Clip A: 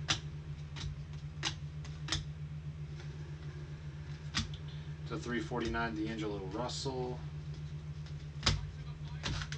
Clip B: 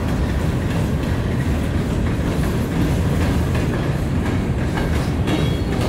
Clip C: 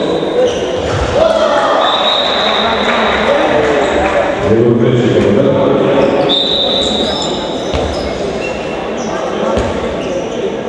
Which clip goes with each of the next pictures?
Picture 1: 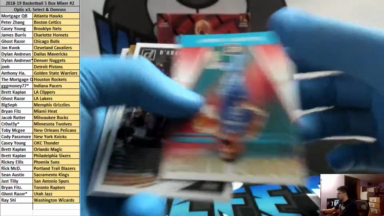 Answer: A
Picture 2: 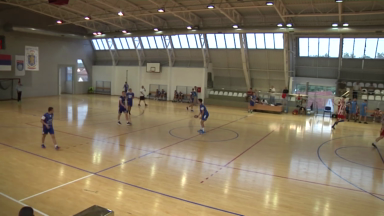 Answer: C